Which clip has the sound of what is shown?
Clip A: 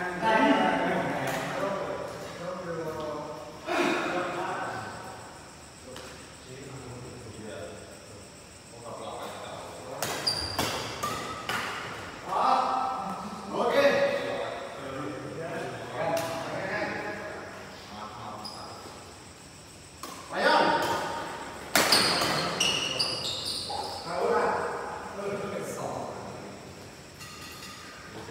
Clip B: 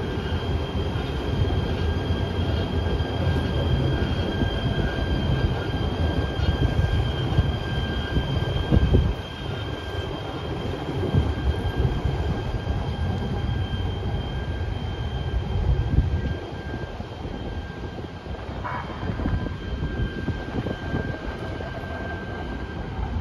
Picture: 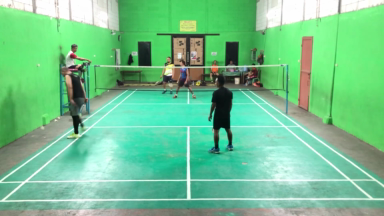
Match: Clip A